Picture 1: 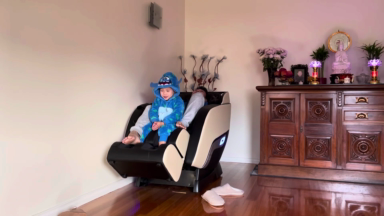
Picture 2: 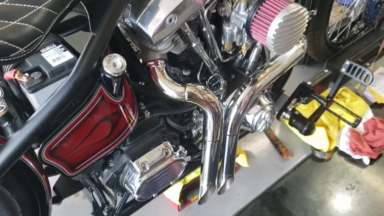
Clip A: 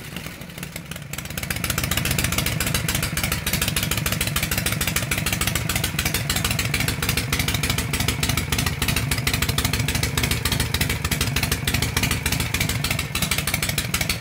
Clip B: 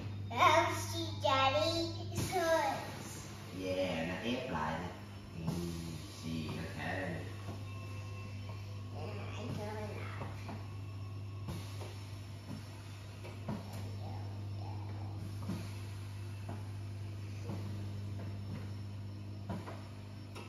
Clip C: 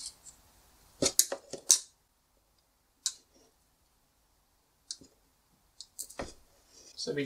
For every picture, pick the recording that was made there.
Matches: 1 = B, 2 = A